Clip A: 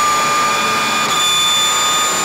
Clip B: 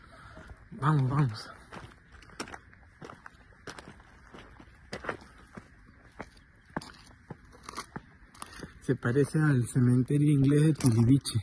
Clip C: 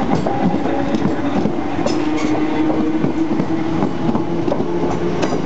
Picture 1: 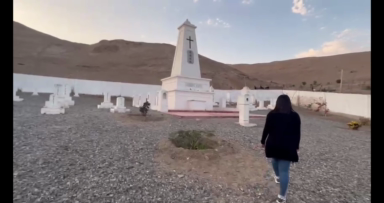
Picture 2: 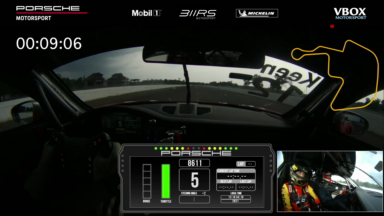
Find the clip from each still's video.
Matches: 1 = B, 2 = A